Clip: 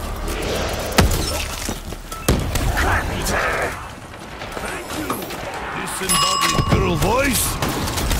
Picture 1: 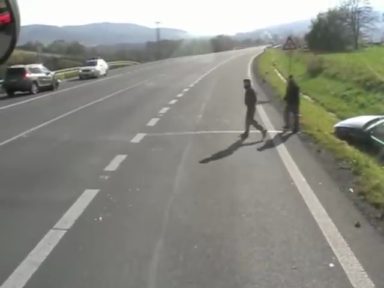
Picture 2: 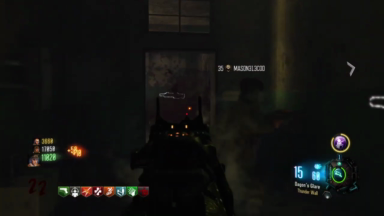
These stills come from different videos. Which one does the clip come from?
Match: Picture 2